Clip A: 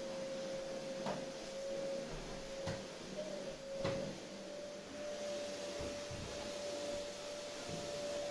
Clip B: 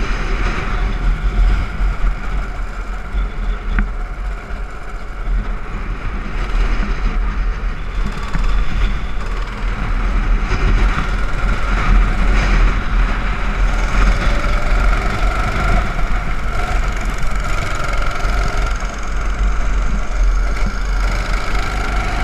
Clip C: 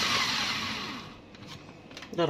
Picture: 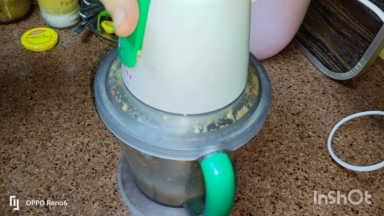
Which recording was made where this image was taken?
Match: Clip C